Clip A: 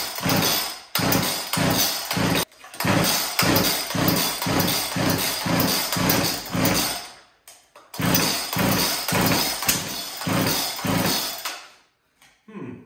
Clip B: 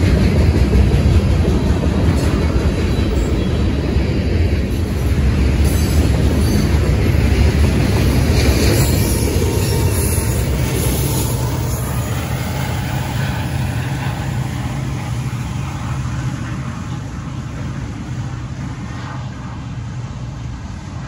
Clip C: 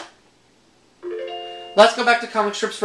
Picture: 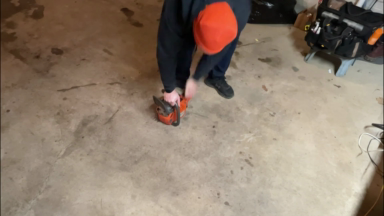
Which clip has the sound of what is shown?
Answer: A